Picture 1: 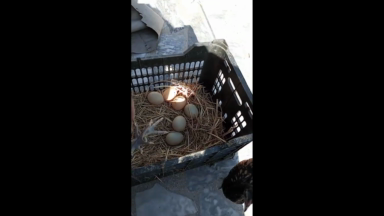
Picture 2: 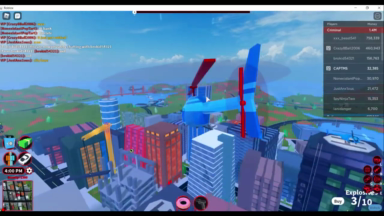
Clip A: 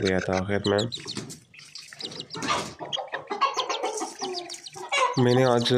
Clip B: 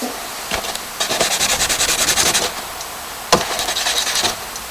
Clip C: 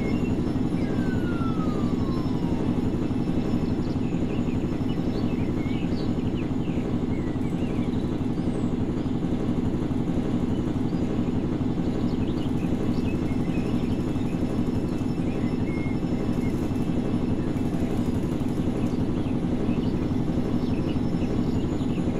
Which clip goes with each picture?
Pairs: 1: A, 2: C